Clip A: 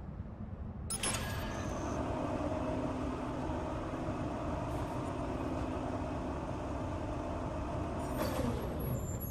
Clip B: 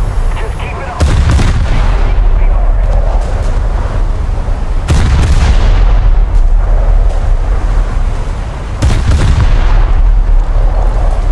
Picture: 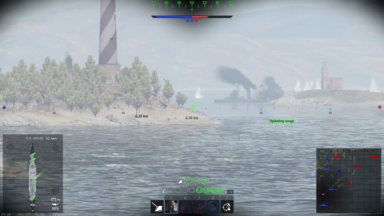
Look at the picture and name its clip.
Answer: B